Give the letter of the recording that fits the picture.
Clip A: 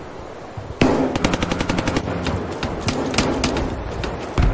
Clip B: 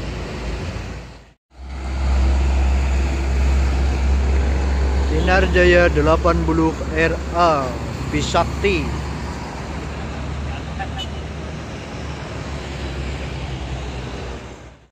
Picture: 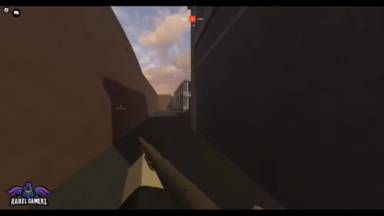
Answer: A